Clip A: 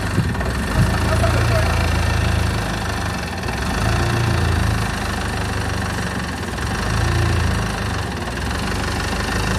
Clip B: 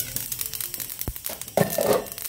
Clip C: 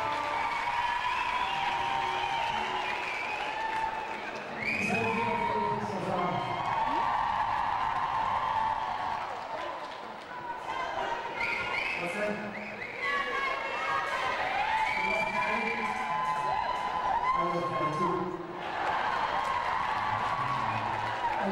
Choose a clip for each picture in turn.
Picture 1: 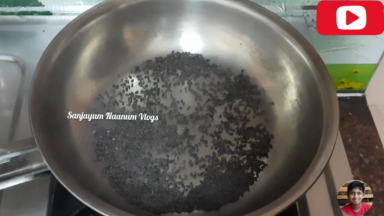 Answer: B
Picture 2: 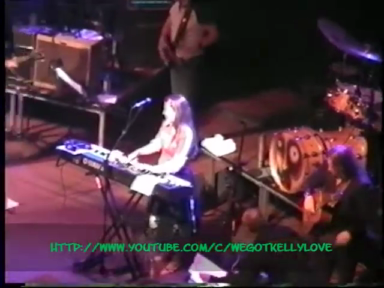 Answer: C